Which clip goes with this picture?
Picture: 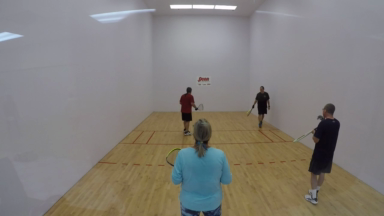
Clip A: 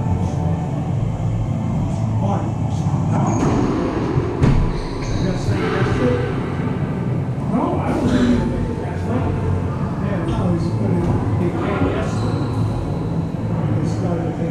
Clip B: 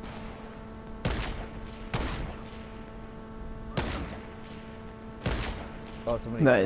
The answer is A